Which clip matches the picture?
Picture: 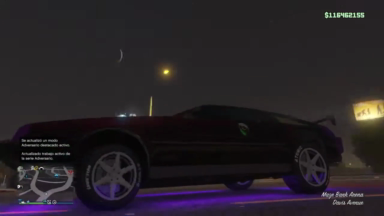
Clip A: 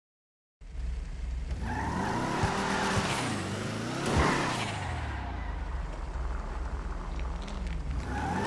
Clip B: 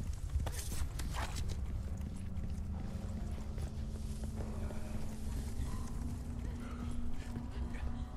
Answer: A